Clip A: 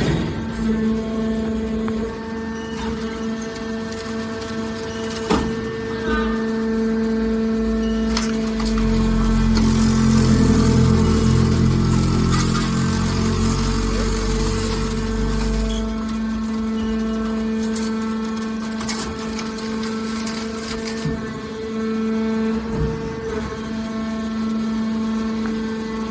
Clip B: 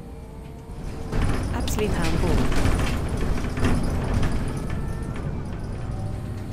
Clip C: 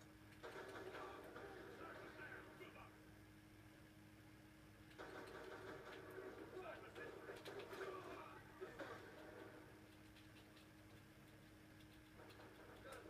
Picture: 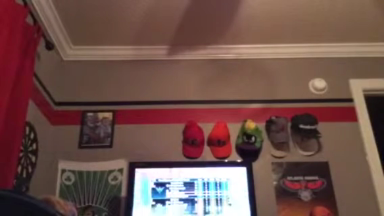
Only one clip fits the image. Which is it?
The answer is C